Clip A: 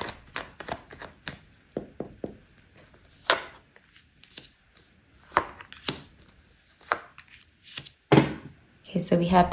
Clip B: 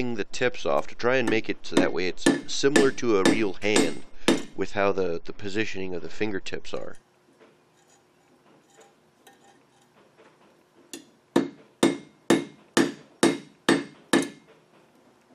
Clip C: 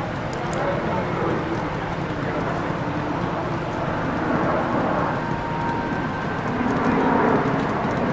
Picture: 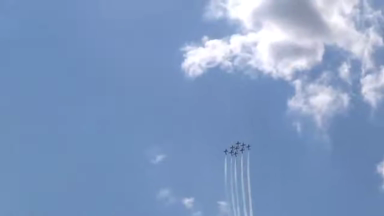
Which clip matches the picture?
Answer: C